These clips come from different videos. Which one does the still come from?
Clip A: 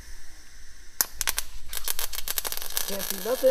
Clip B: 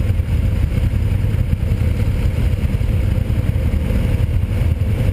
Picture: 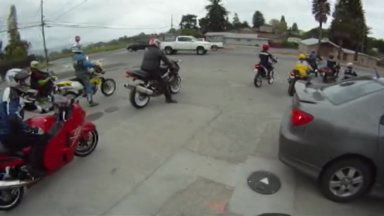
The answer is B